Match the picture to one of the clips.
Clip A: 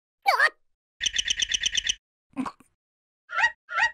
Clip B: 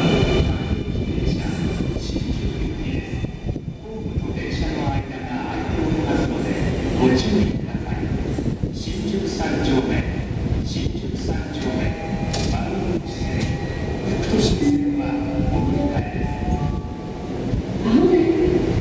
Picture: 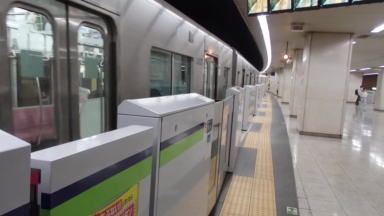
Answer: B